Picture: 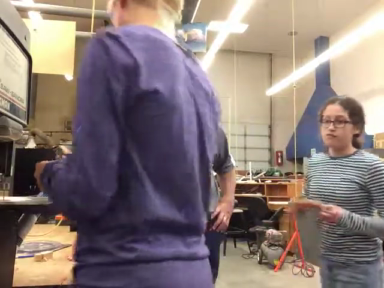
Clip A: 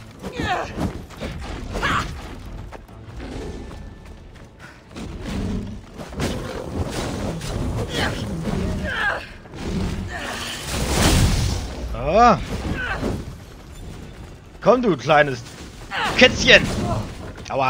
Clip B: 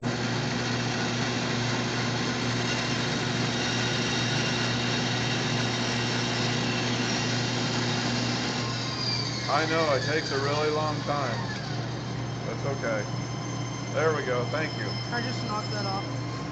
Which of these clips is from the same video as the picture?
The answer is B